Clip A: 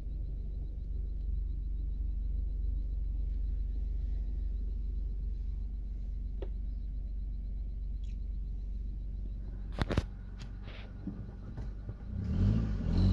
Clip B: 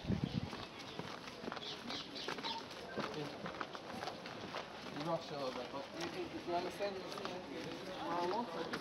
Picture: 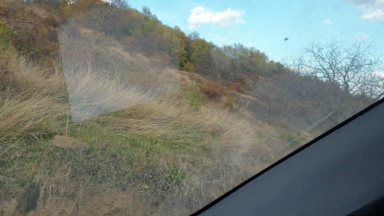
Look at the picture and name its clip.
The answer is A